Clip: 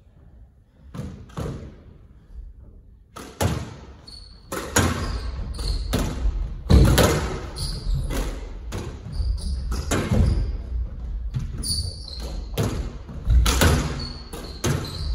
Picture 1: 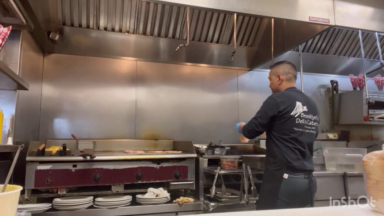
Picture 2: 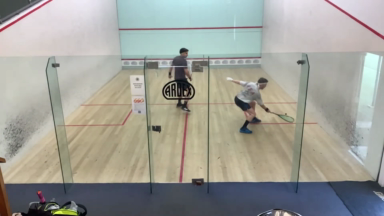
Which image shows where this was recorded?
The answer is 2